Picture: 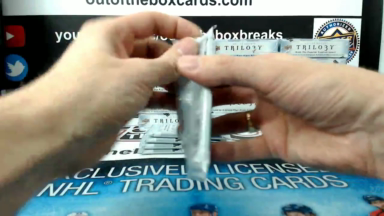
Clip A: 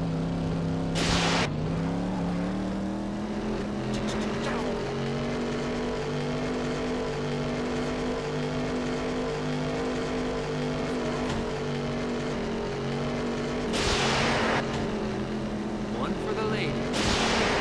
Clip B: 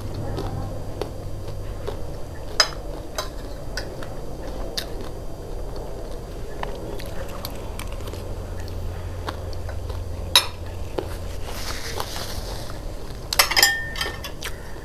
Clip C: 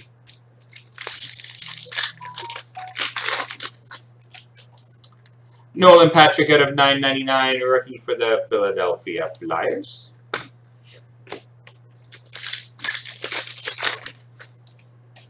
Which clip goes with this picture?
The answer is C